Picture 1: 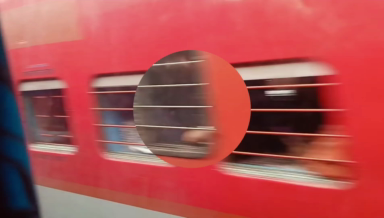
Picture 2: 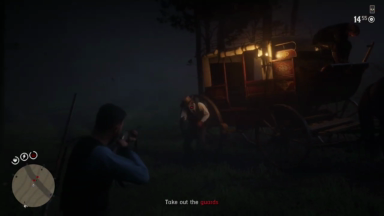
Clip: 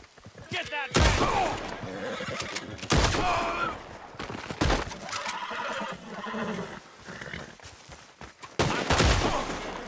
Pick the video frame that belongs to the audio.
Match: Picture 2